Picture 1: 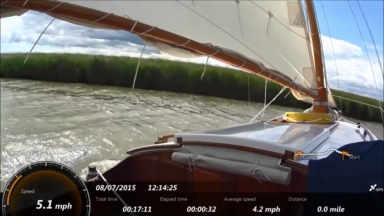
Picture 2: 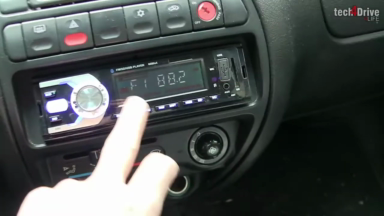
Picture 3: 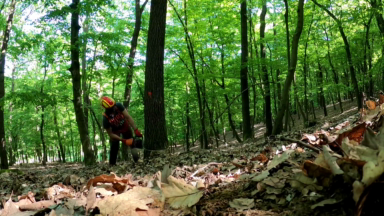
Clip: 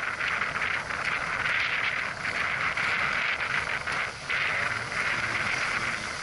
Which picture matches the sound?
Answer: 1